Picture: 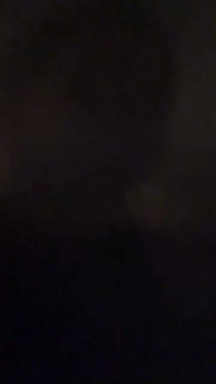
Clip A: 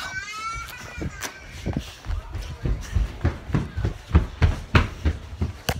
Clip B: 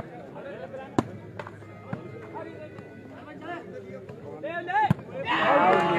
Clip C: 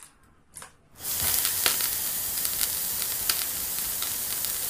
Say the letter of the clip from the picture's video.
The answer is A